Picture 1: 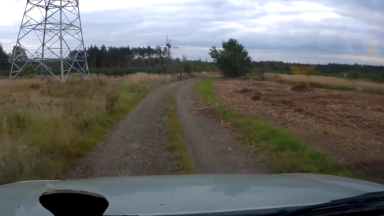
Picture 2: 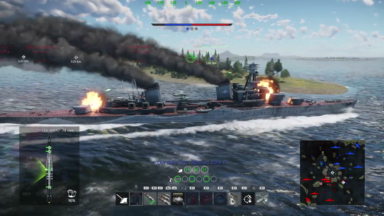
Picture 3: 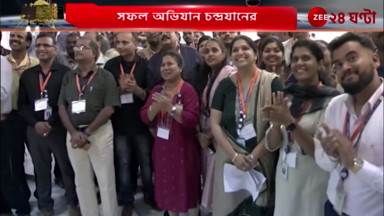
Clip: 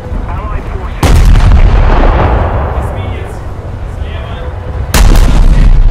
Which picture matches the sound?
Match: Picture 2